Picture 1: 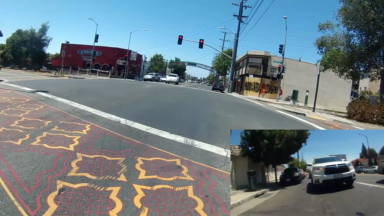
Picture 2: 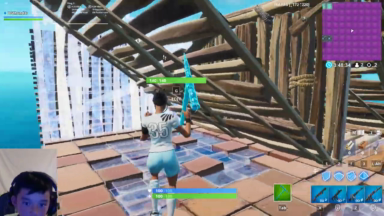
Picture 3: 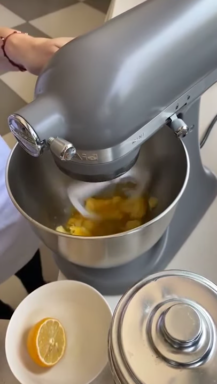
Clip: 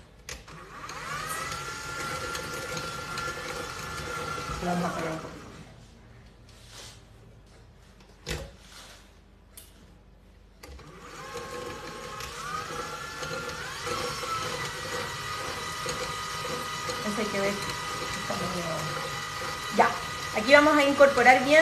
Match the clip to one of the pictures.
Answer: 3